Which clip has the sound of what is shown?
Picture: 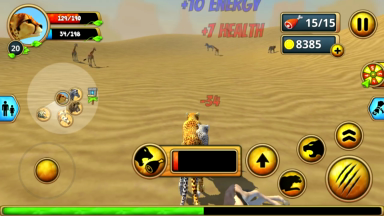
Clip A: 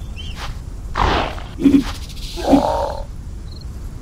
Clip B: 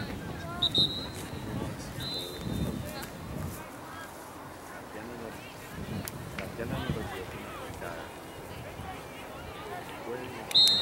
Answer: A